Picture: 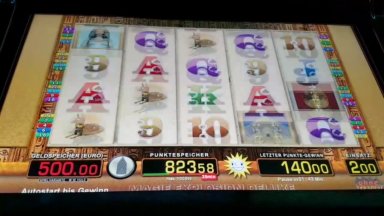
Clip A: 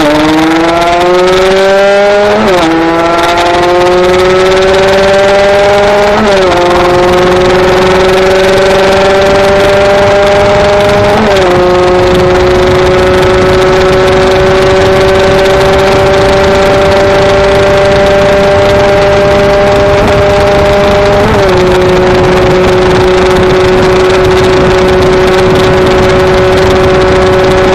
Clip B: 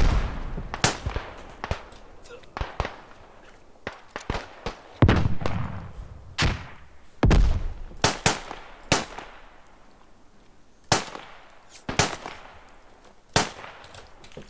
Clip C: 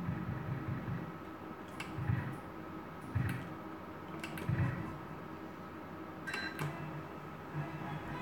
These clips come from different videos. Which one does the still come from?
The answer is C